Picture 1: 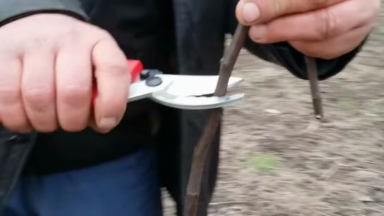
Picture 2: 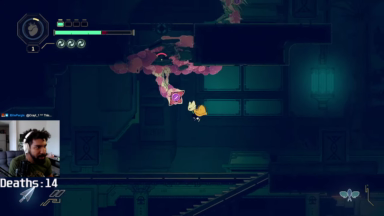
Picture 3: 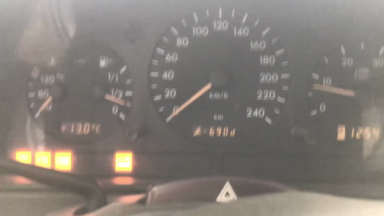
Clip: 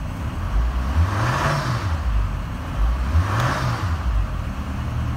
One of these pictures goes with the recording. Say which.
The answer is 3